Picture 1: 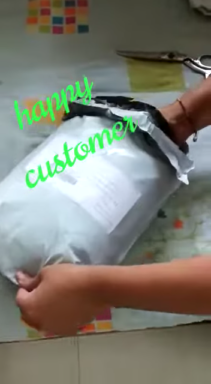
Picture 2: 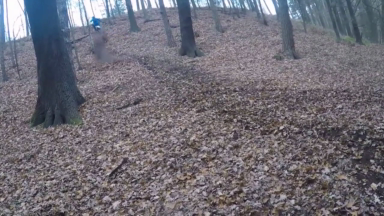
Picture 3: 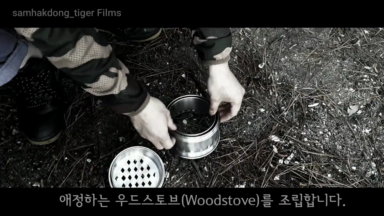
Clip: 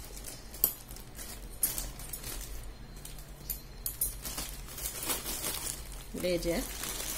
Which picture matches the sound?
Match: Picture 1